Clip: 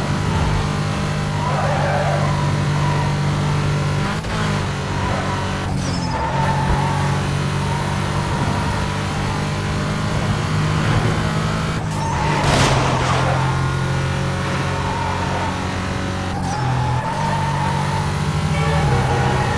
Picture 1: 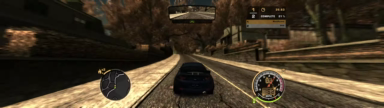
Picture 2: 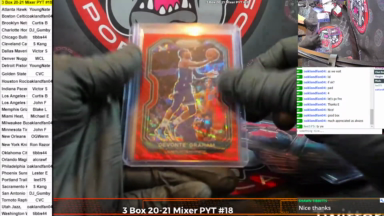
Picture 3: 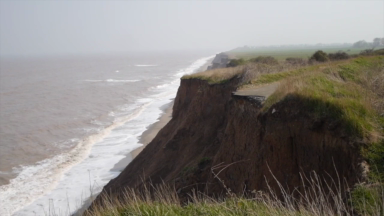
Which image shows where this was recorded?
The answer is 1